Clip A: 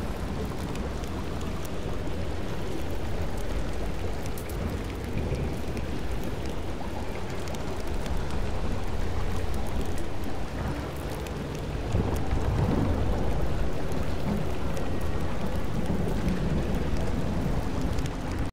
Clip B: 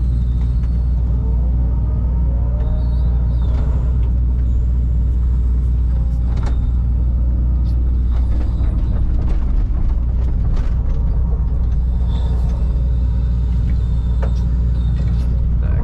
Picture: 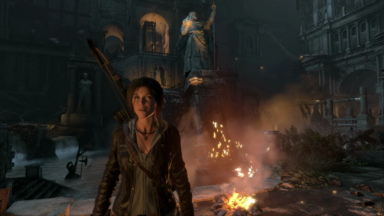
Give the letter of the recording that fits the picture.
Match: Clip A